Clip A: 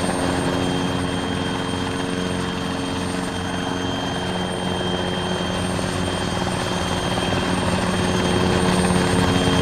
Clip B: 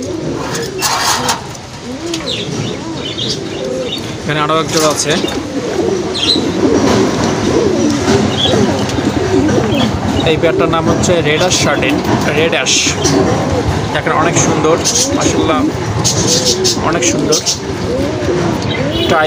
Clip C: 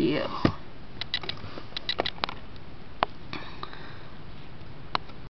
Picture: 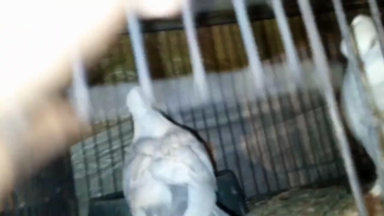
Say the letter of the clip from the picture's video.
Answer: B